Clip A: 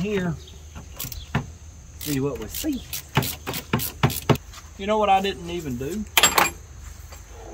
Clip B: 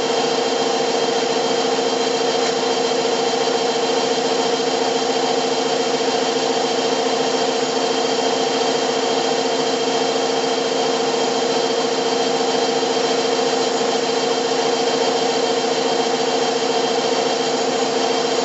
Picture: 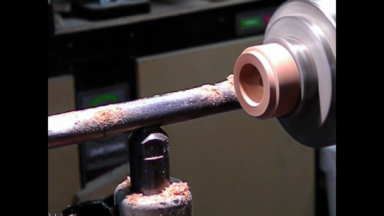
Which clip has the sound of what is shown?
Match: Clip B